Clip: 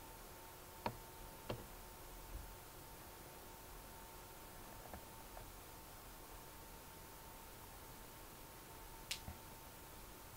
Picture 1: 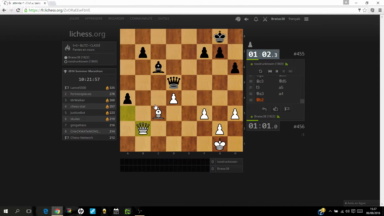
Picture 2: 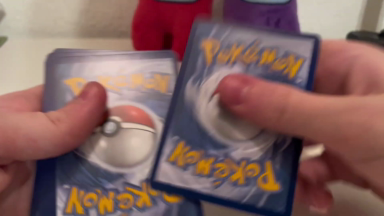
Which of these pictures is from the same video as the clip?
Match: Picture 1